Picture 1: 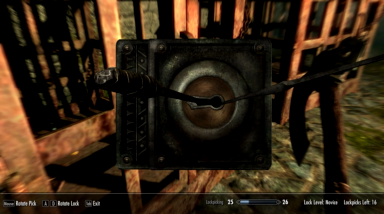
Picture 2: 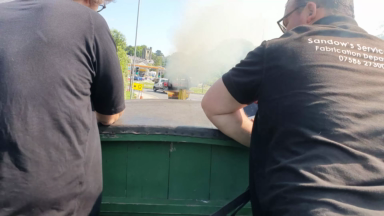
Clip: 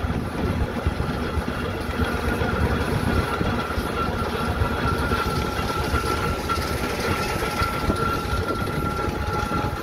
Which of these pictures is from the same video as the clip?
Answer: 2